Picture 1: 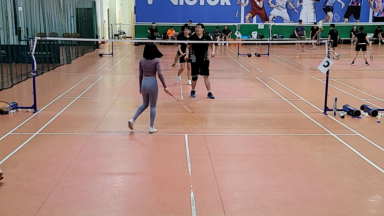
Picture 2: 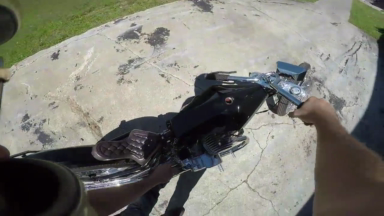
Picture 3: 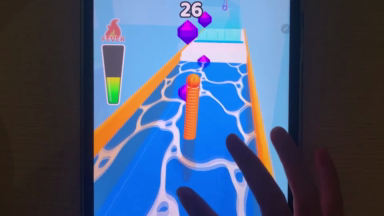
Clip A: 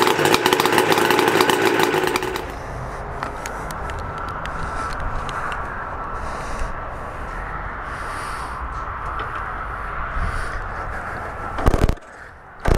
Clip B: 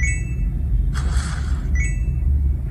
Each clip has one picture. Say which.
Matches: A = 2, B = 3